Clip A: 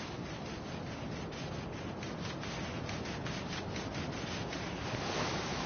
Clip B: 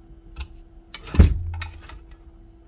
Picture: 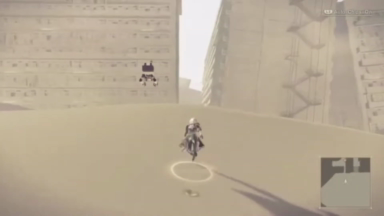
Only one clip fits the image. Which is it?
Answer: A